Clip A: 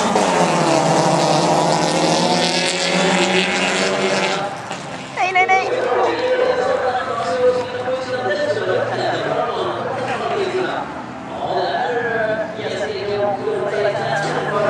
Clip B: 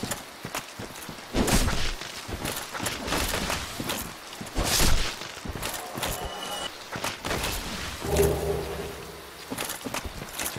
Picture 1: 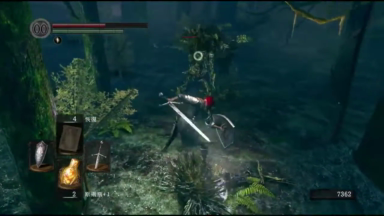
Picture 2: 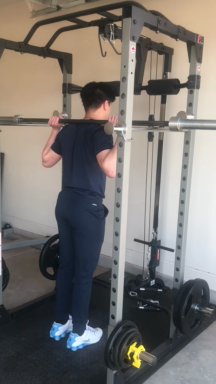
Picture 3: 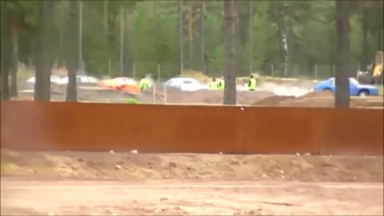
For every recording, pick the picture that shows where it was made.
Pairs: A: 3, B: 1